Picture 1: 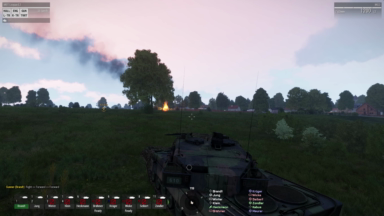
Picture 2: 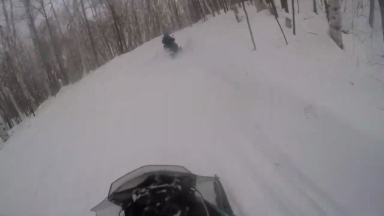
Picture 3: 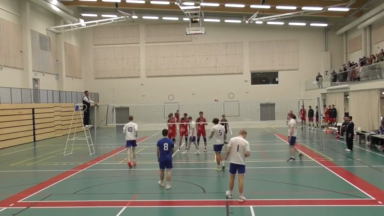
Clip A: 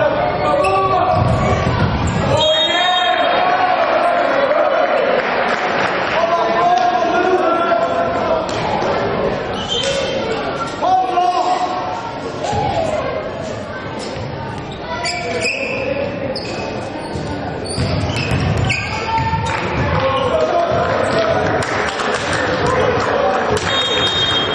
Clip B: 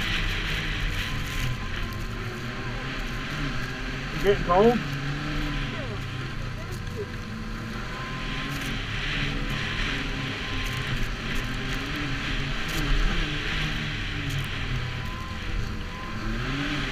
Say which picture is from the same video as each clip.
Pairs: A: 3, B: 2